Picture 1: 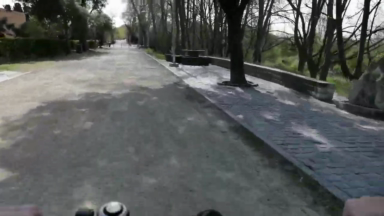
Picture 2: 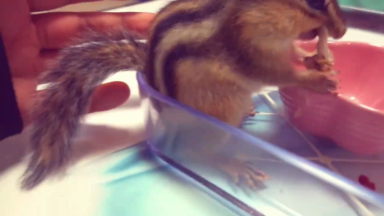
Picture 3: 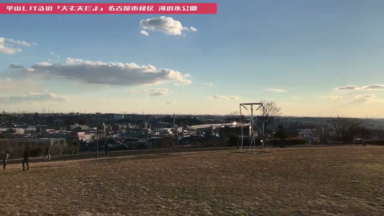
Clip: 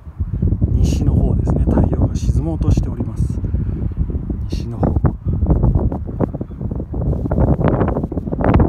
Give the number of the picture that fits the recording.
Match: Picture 3